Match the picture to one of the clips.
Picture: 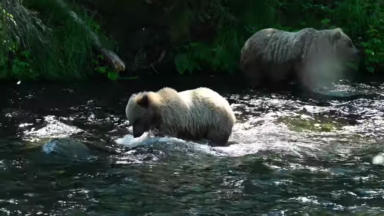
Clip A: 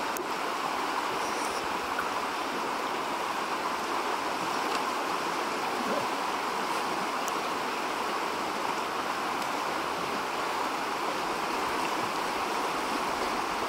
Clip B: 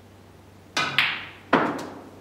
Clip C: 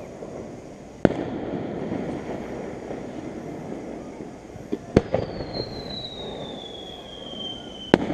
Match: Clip A